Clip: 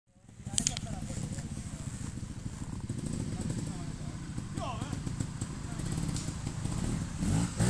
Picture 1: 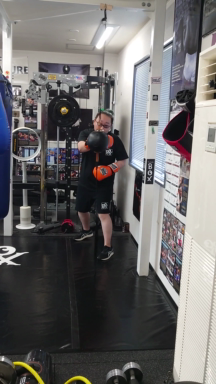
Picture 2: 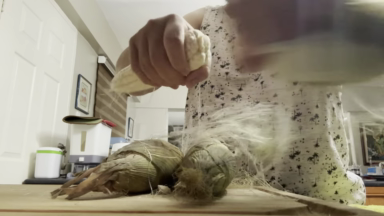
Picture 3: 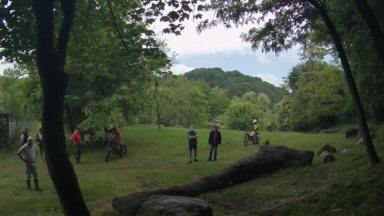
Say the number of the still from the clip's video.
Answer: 3